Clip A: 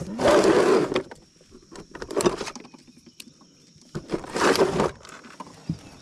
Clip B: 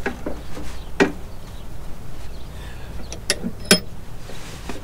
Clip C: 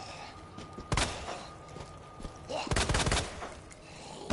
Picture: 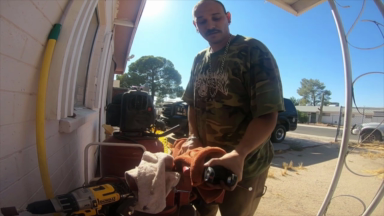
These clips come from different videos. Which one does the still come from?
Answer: B